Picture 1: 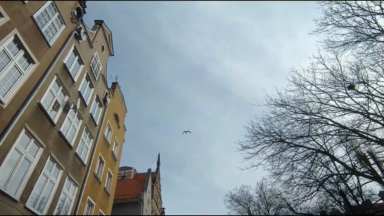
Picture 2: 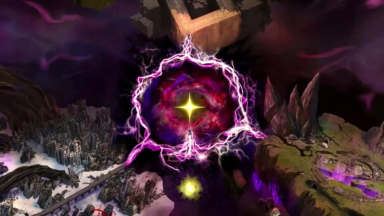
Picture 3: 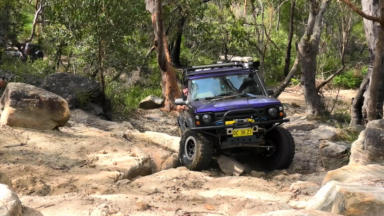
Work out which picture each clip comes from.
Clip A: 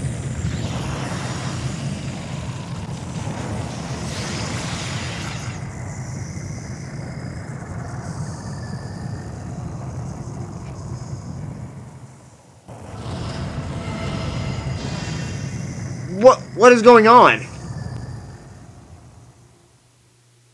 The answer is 2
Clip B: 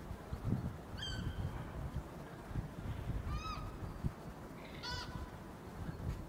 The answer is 1